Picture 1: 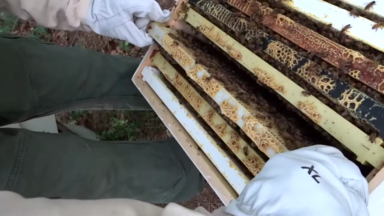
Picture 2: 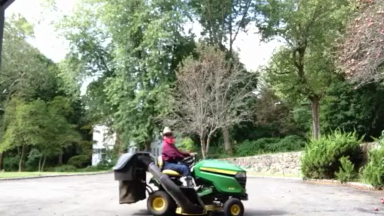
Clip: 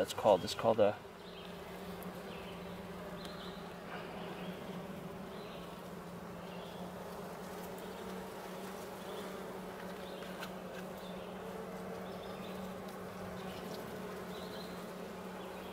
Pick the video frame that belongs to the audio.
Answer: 1